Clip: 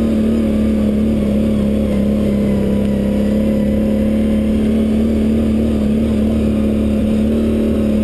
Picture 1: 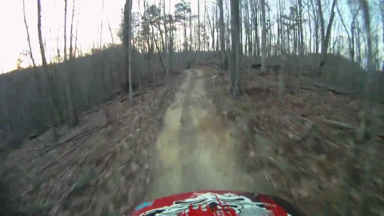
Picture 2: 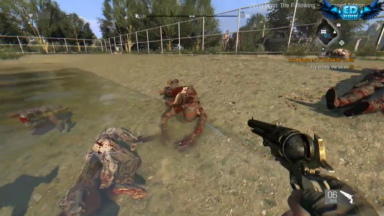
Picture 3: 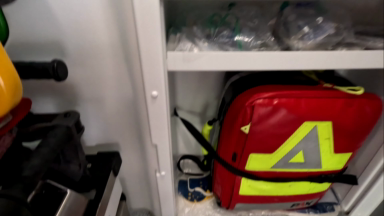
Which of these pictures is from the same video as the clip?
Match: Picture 1